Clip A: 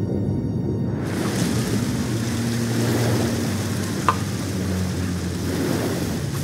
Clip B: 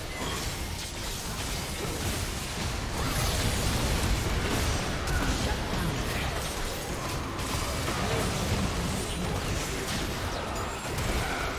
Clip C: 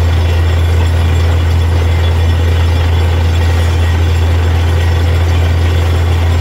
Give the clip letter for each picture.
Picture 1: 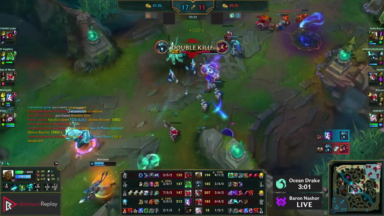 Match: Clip B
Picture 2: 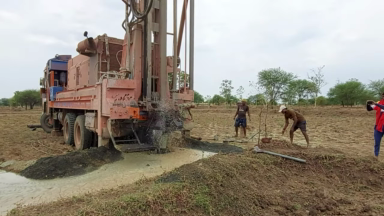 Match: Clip C